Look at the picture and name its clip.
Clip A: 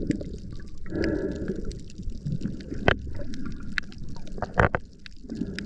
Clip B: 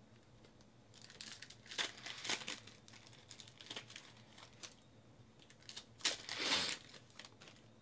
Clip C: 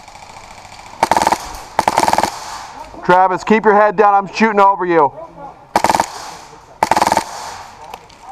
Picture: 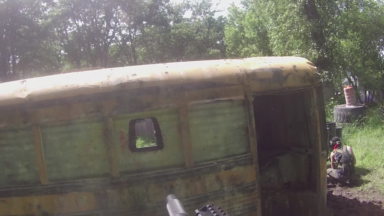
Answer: C